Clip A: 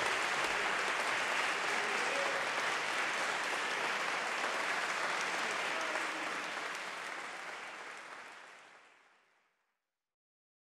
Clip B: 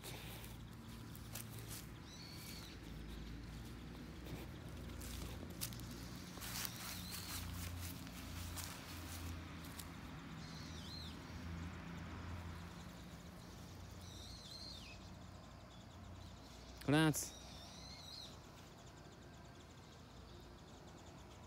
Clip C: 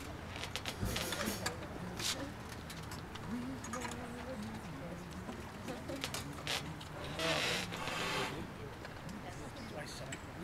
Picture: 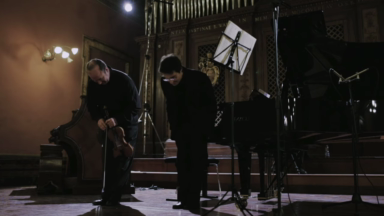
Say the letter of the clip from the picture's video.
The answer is A